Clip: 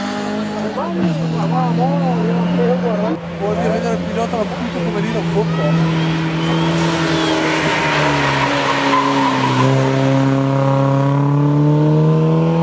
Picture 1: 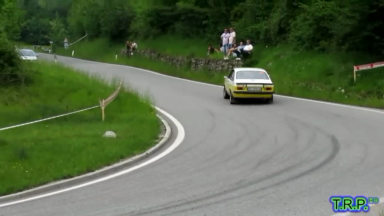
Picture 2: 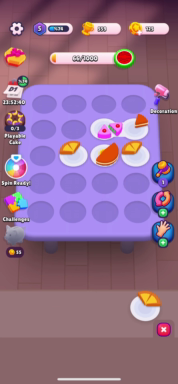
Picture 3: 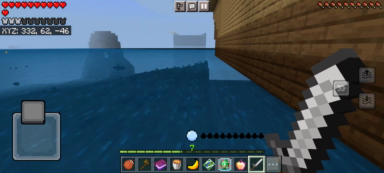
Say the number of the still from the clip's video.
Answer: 1